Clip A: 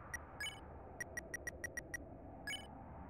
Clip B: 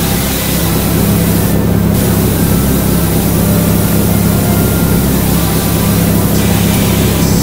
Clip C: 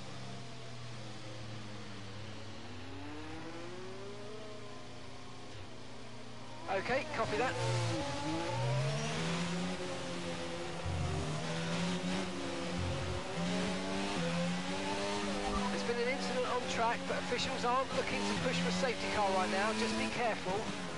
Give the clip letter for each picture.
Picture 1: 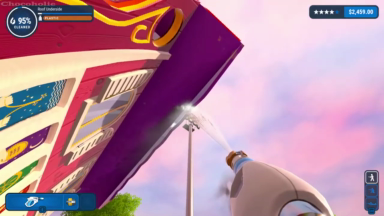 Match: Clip B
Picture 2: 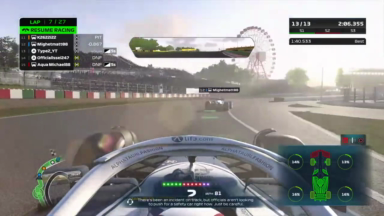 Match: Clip C